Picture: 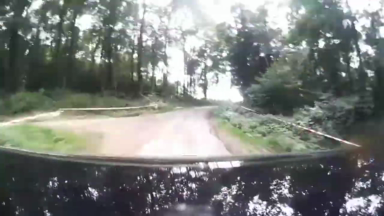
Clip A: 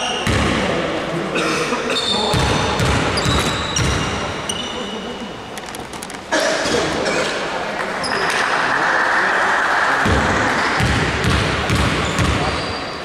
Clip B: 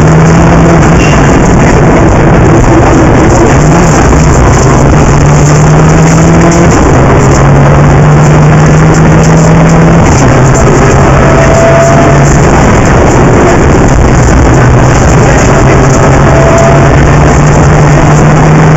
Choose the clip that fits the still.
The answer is B